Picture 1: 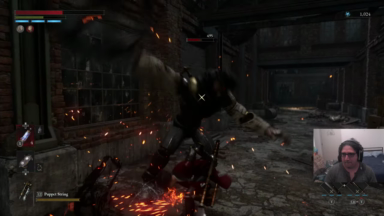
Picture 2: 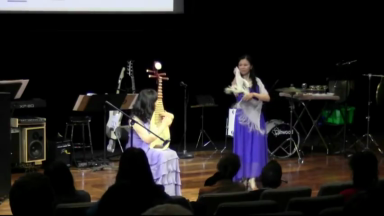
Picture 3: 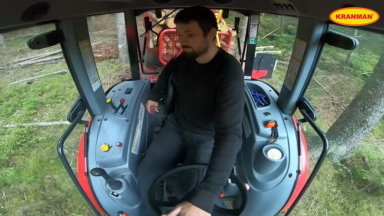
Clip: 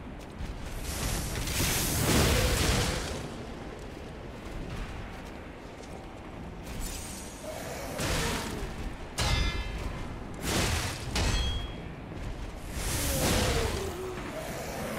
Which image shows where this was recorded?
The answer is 1